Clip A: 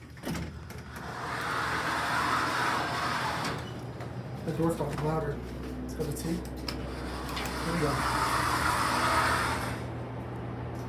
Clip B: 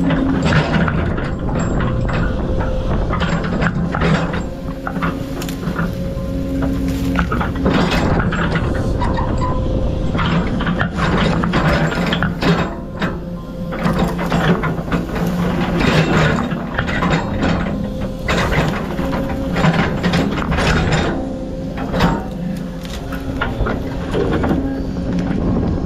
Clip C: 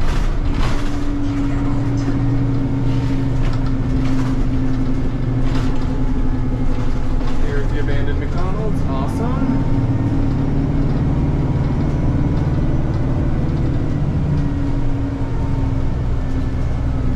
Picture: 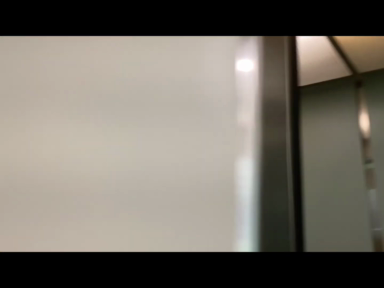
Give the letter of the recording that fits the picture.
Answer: A